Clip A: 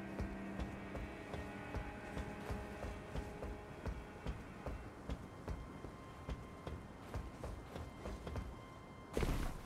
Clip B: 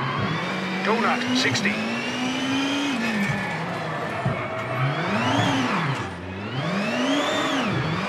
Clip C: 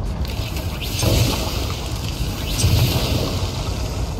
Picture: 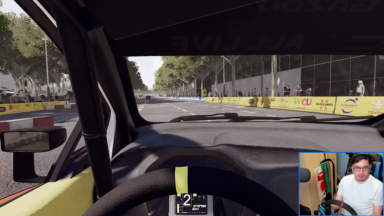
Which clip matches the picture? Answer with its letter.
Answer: B